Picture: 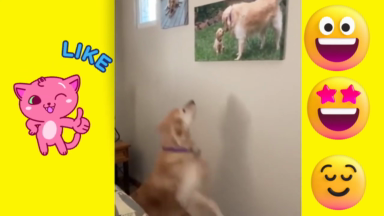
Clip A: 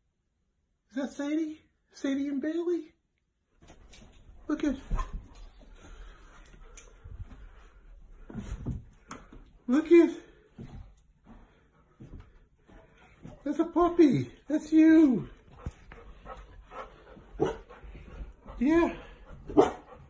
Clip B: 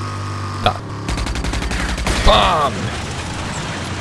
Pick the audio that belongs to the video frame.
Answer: A